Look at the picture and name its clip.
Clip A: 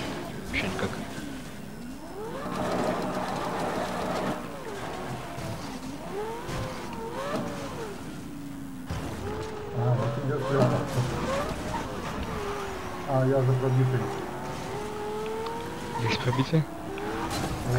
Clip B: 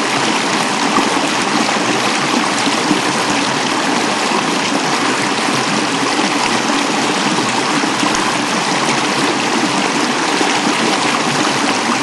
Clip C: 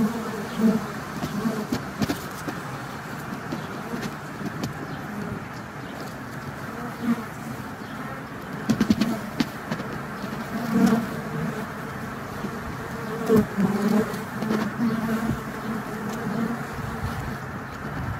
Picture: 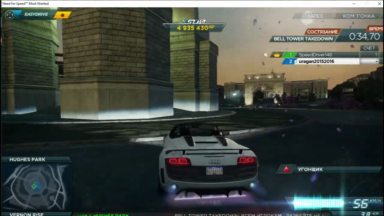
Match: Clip A